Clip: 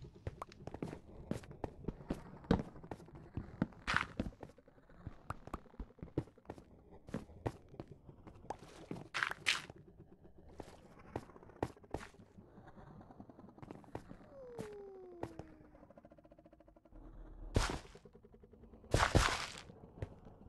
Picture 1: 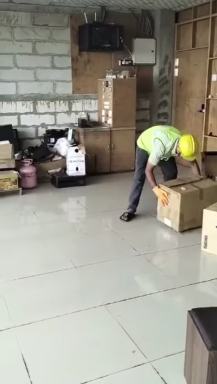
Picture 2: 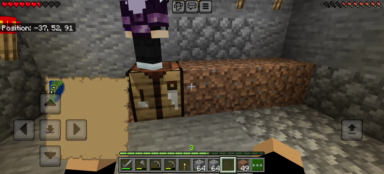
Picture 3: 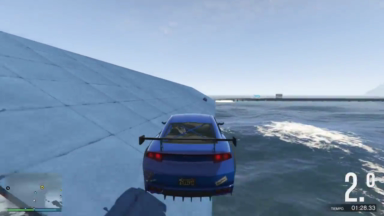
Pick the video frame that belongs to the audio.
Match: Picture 2